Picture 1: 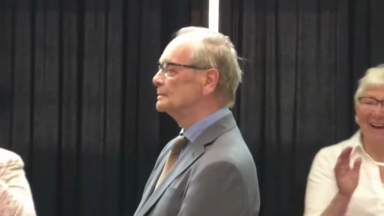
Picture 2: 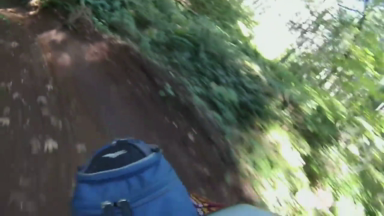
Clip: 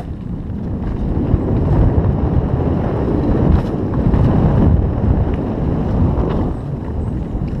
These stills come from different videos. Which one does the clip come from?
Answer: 2